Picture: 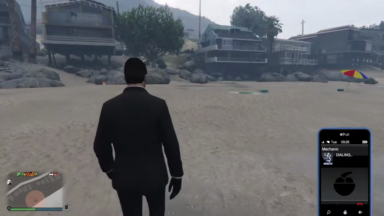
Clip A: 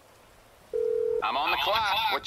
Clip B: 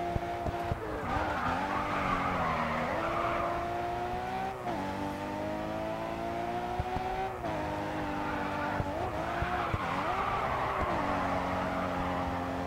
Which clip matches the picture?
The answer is A